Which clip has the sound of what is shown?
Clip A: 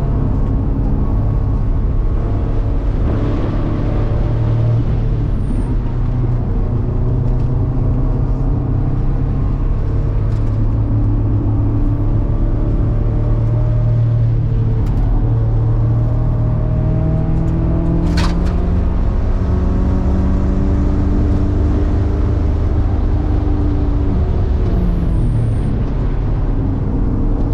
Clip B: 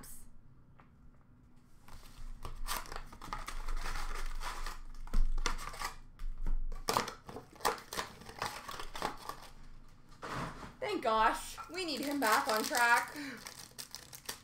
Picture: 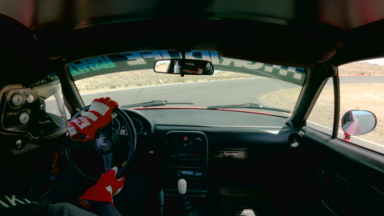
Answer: A